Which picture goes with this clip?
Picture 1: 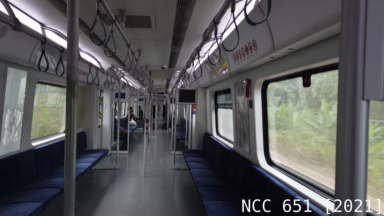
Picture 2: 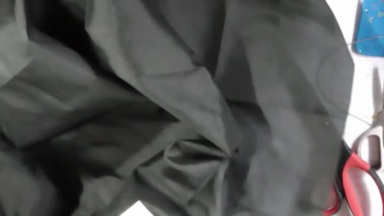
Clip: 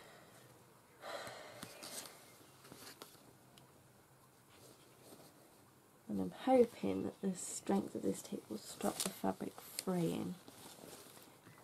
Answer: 2